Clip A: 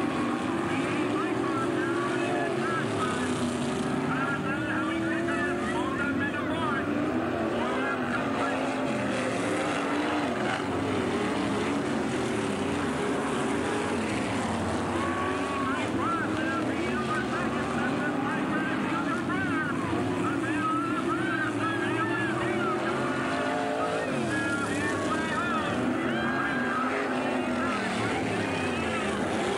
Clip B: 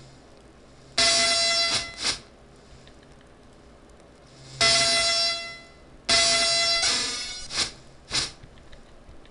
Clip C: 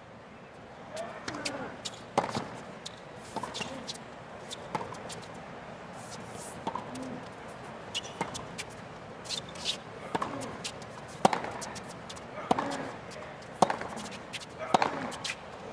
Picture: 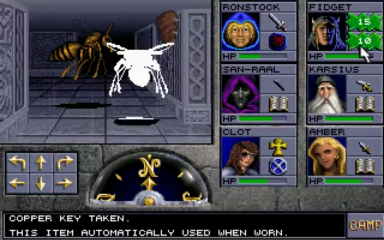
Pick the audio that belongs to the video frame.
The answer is B